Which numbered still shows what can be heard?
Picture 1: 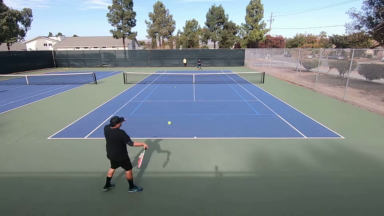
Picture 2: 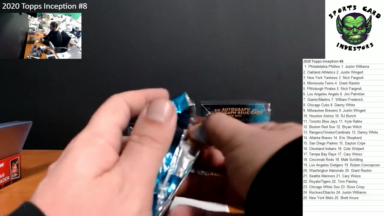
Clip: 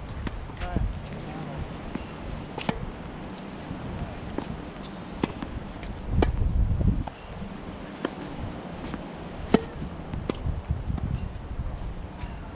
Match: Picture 1